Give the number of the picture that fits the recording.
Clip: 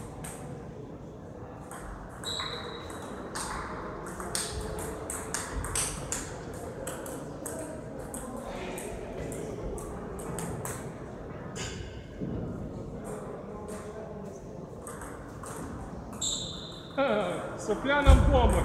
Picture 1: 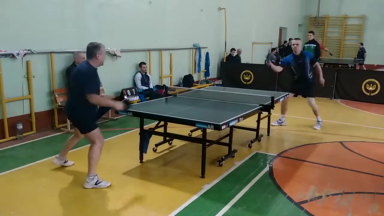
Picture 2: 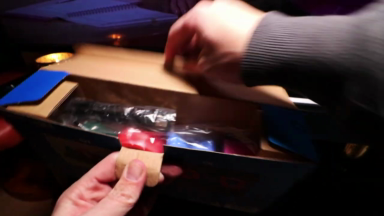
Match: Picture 1